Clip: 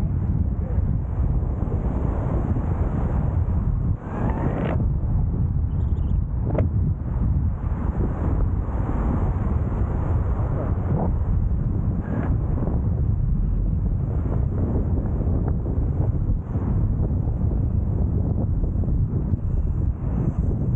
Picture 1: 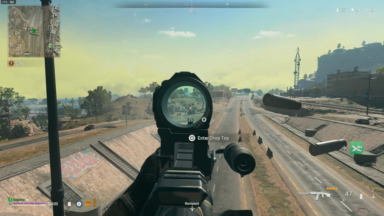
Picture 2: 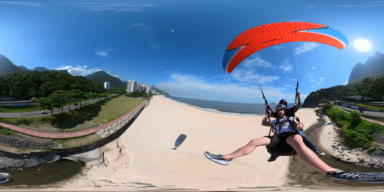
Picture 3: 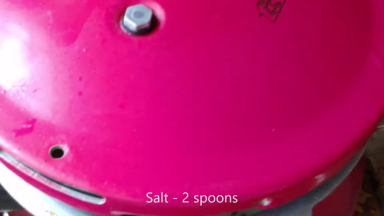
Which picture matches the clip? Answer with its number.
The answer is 2